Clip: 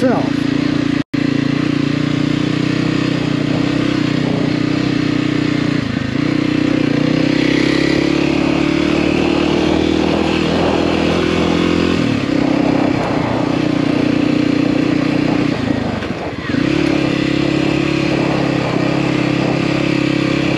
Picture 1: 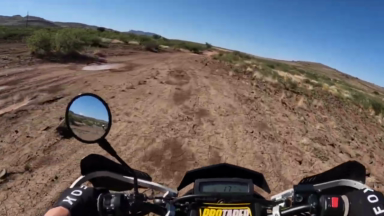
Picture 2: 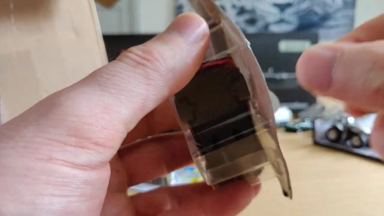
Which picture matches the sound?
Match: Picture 1